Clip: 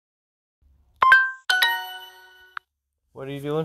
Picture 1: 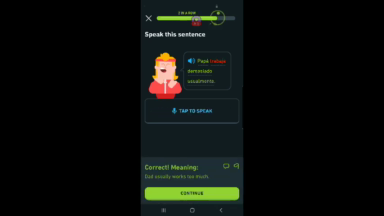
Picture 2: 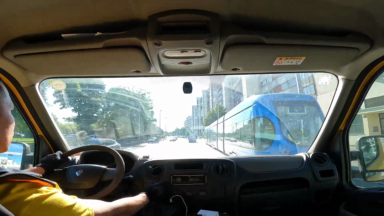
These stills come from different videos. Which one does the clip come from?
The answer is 1